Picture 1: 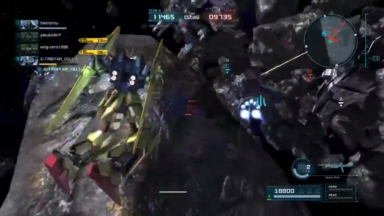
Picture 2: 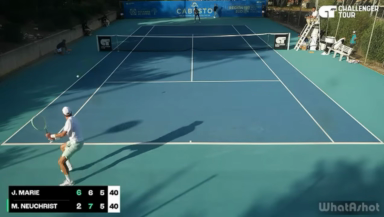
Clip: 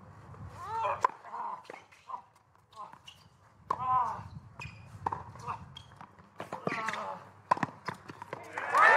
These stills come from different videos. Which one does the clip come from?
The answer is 2